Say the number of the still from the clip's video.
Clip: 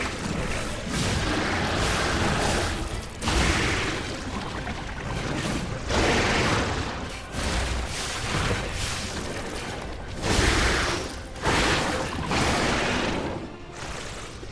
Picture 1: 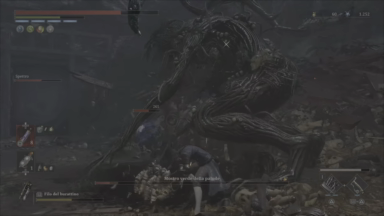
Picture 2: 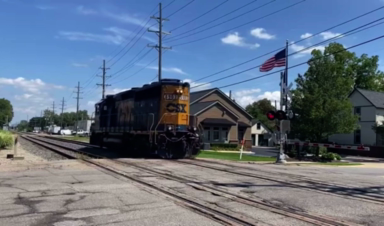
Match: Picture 1